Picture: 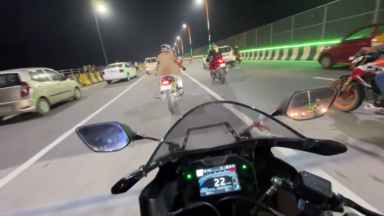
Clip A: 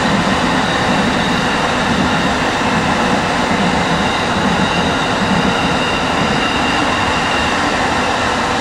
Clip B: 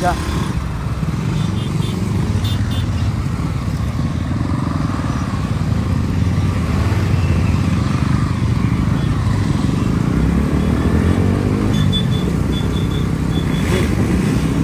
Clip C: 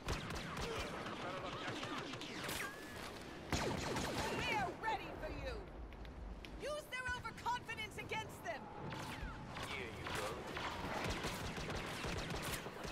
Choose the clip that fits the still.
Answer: B